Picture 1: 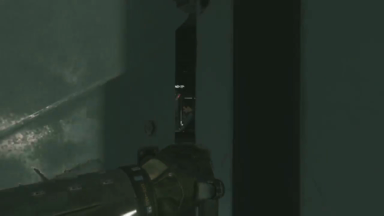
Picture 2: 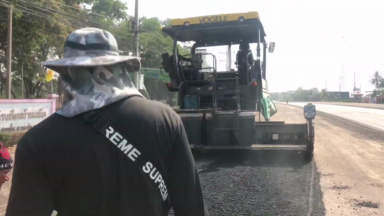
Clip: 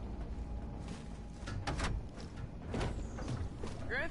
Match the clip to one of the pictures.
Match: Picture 1